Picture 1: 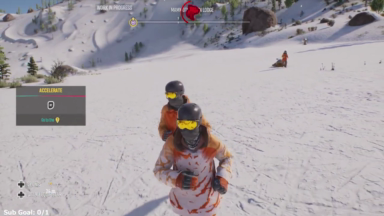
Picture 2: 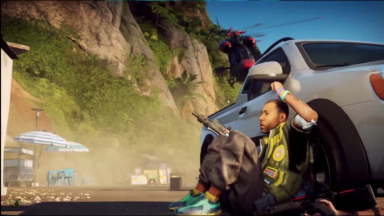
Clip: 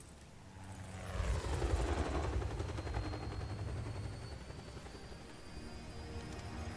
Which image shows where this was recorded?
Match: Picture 2